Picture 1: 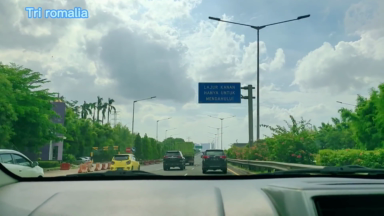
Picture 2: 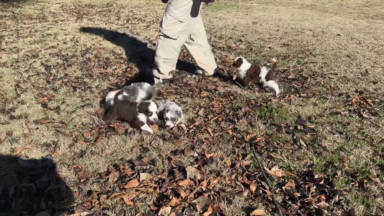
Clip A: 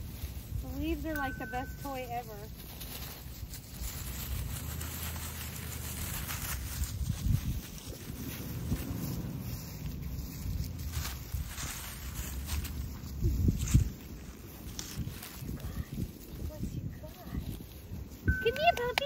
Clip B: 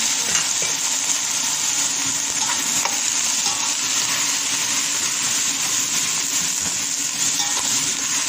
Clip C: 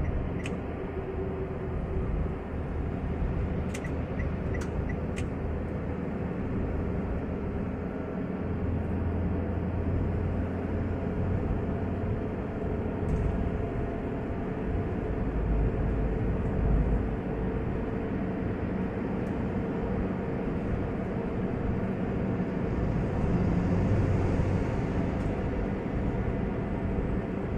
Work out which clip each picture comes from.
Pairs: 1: C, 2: A